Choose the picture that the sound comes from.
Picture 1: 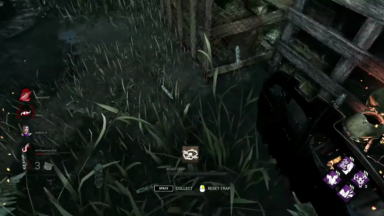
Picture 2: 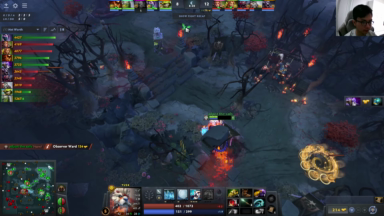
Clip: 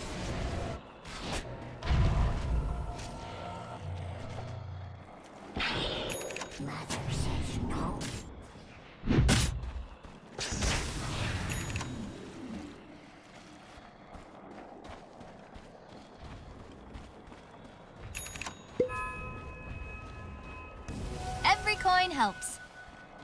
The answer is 2